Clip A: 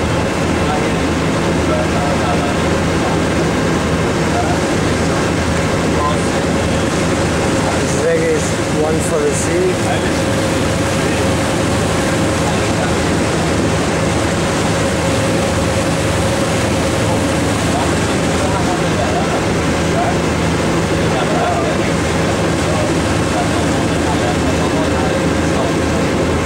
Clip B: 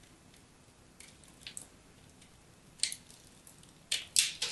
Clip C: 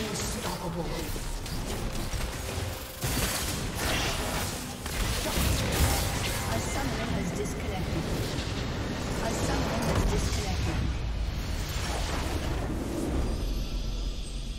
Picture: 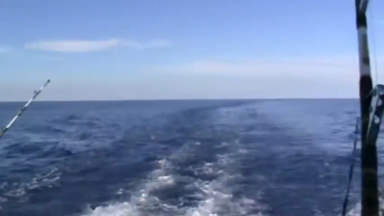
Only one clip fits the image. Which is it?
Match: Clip A